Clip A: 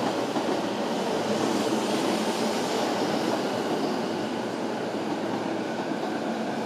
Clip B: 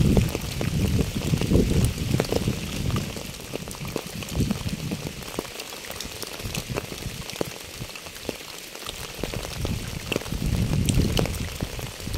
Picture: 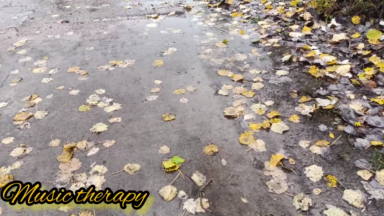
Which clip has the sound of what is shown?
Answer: B